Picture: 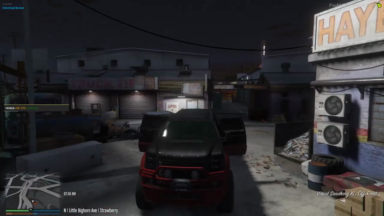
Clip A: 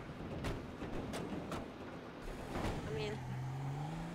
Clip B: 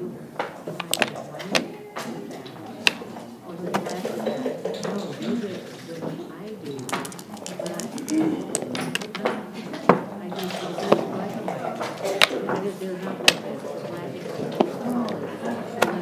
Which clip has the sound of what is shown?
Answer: A